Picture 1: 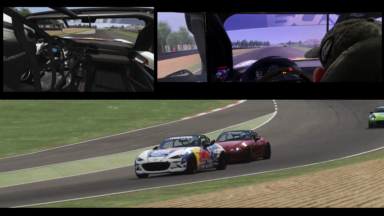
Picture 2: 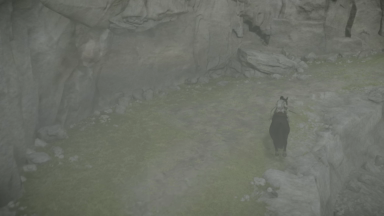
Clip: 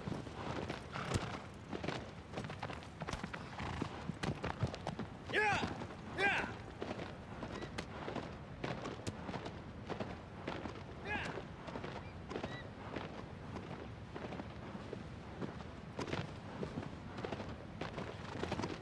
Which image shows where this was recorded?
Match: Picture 2